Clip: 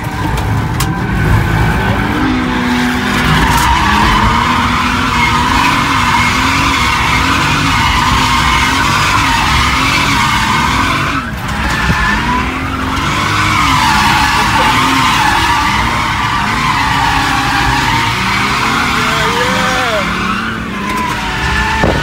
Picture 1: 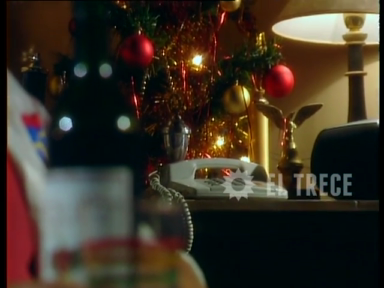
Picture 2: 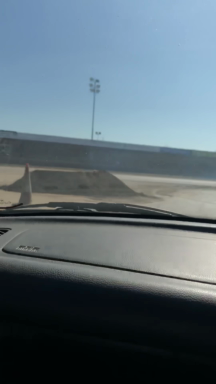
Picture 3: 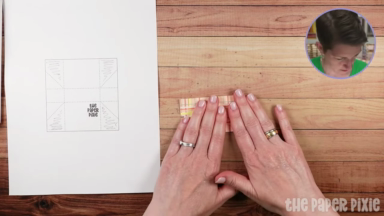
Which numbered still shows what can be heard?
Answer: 2